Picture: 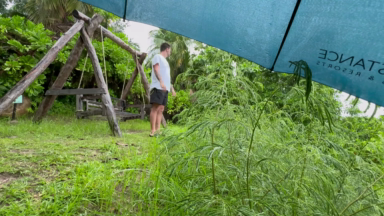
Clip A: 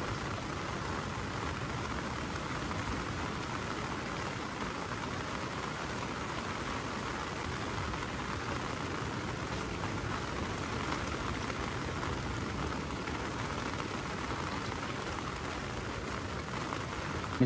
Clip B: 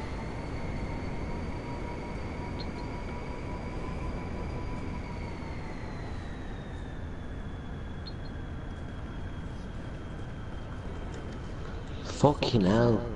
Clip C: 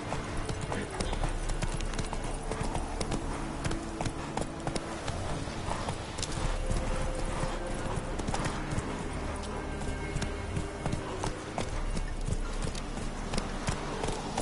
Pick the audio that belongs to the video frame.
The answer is A